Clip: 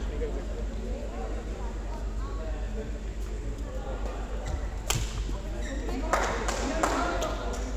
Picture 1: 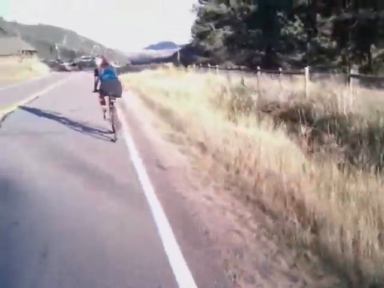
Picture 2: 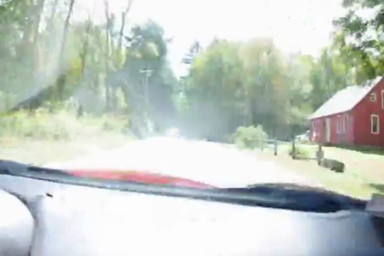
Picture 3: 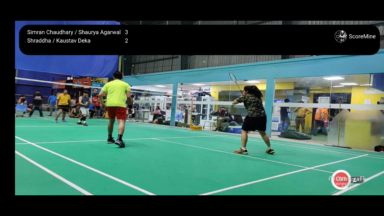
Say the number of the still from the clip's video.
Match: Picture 3